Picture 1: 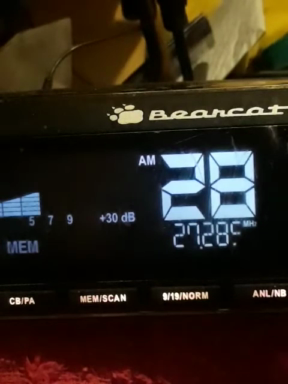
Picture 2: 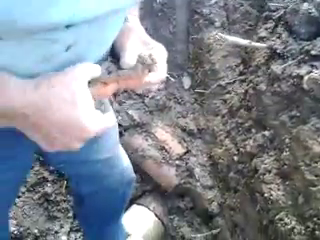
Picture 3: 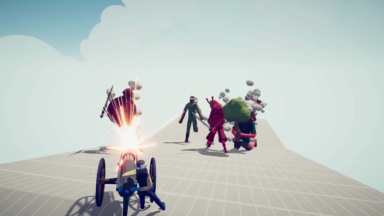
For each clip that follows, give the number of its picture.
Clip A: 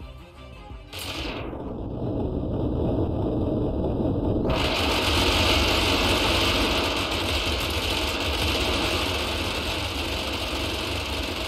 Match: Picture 3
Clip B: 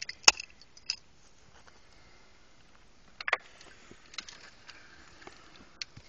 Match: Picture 2